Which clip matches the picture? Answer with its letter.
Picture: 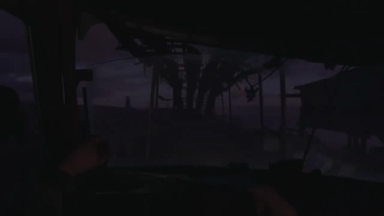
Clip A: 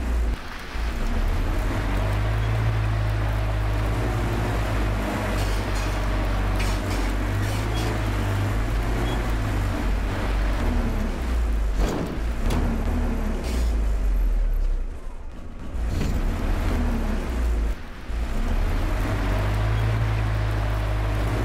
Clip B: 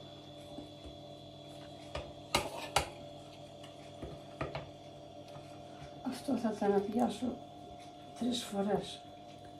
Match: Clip A